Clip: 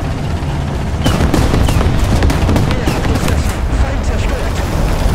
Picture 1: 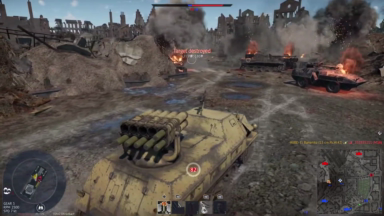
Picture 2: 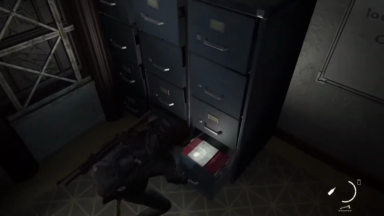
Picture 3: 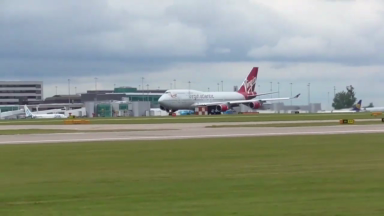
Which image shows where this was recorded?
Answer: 1